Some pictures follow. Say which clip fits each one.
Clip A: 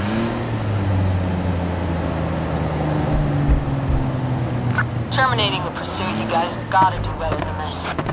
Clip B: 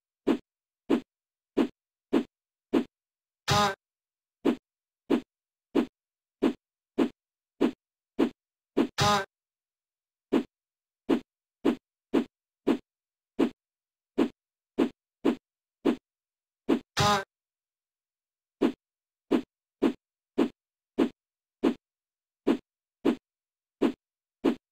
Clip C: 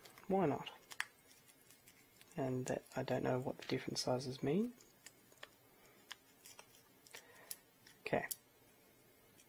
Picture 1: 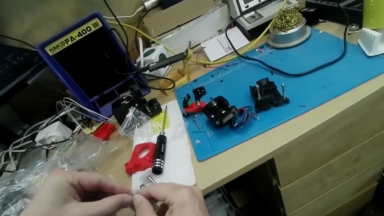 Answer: C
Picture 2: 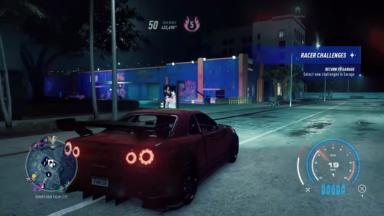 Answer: A